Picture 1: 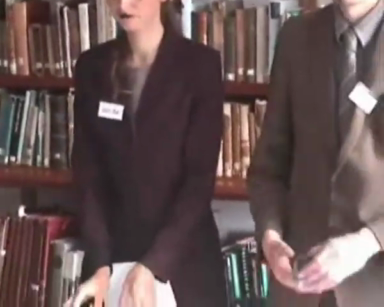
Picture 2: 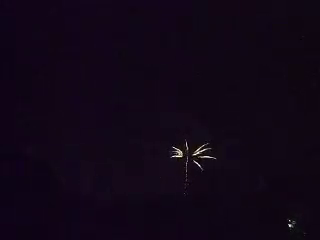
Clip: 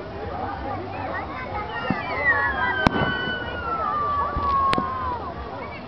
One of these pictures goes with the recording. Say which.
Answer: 2